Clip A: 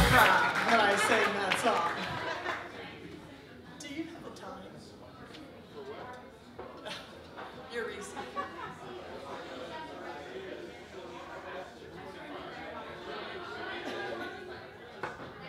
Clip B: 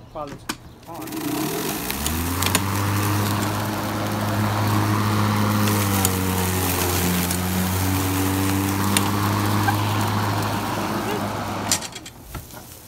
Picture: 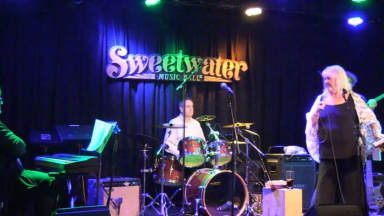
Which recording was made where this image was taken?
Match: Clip A